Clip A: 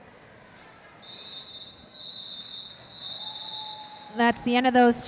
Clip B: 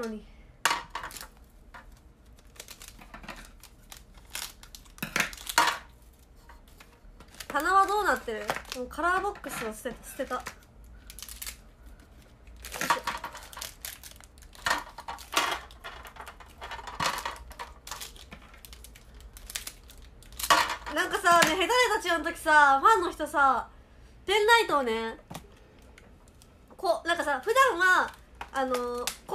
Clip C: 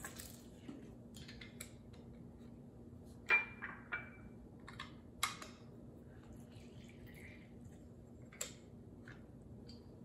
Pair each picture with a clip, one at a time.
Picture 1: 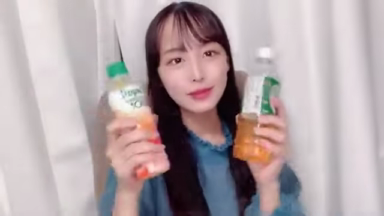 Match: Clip B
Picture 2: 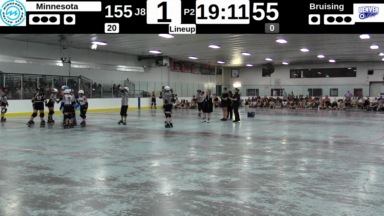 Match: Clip A